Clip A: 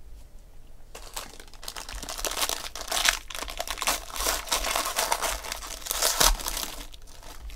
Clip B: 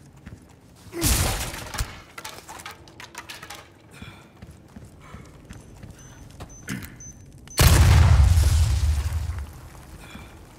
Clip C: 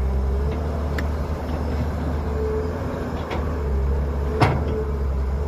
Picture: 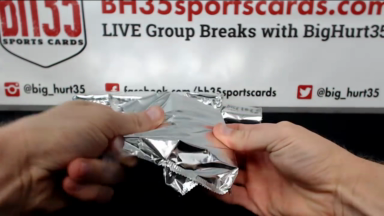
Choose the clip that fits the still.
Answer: A